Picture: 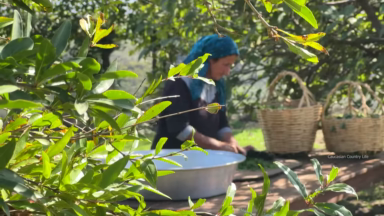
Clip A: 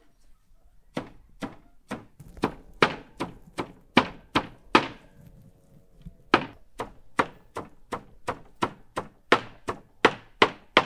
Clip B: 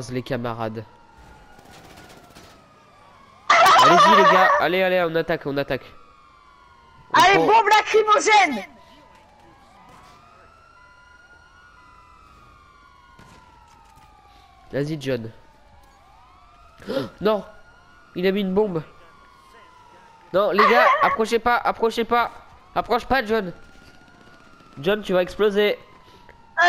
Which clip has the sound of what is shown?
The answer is A